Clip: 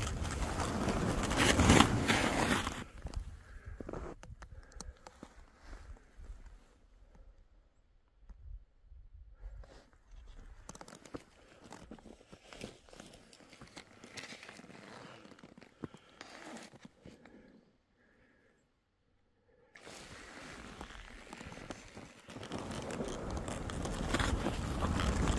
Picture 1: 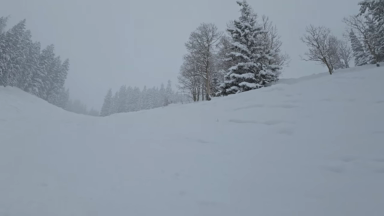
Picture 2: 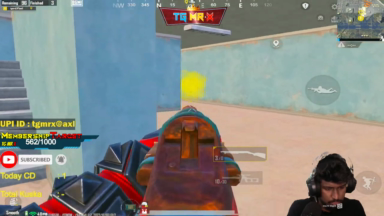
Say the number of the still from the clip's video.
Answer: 1